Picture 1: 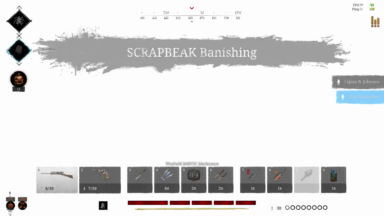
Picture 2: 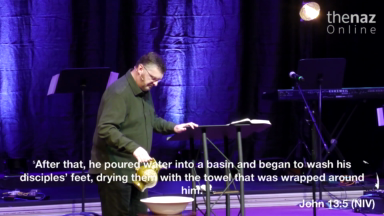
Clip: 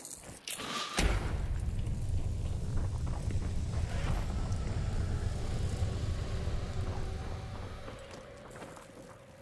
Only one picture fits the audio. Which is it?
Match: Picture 1